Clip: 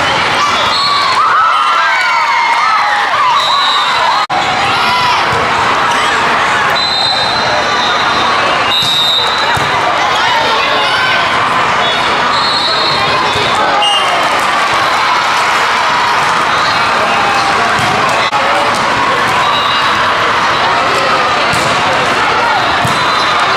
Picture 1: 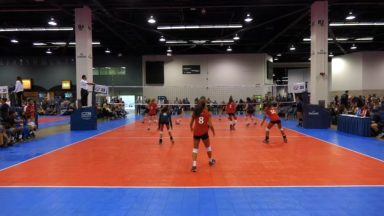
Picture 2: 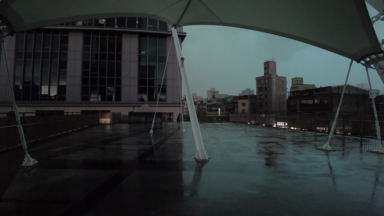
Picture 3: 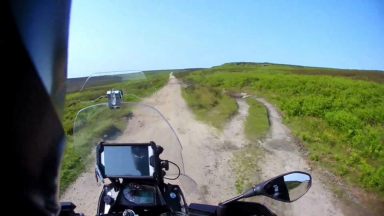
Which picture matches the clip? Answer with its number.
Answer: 1